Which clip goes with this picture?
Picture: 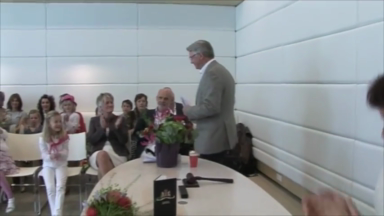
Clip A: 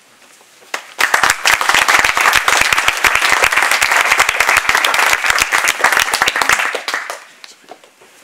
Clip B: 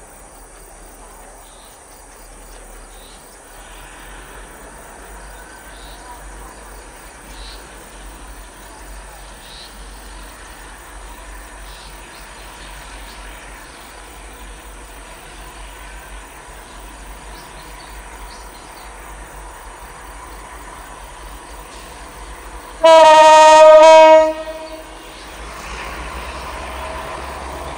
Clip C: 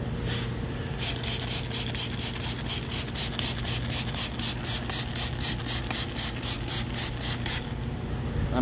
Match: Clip A